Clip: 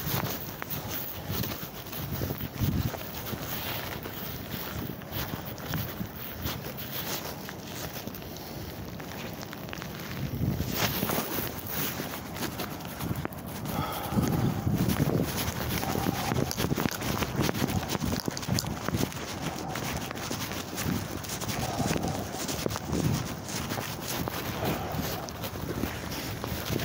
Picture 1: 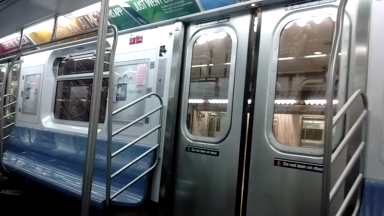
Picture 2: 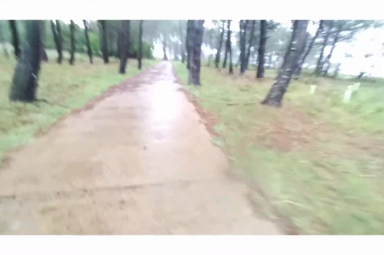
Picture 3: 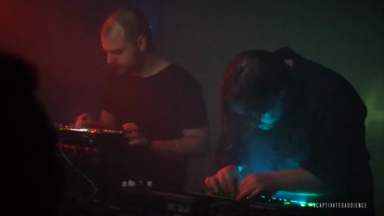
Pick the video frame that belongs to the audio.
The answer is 2